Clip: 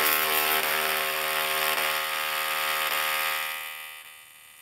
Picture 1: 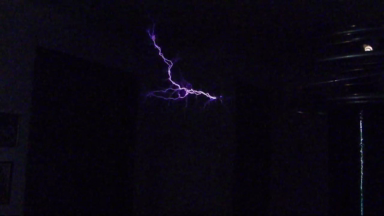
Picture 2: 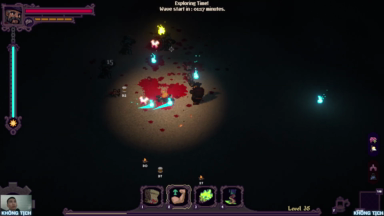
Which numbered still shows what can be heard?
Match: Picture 1